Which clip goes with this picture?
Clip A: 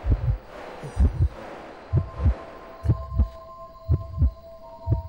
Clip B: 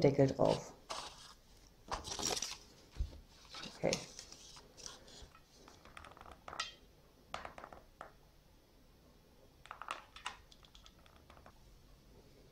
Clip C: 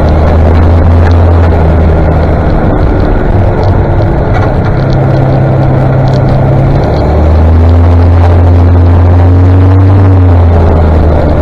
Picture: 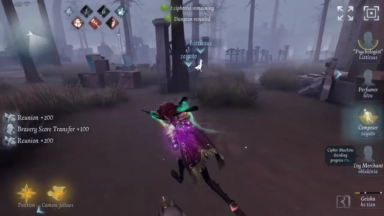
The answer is A